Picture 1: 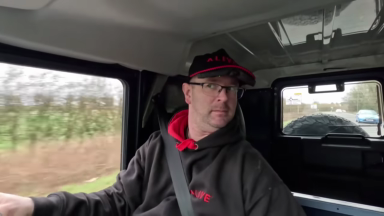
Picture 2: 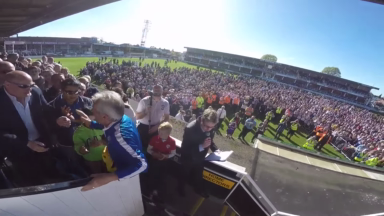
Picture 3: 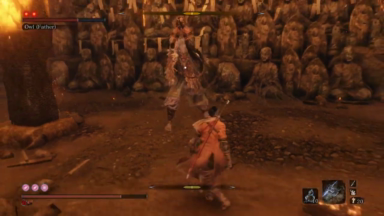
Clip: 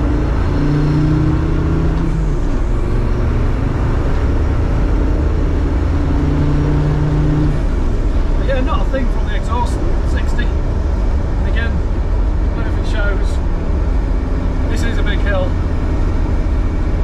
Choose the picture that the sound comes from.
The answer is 1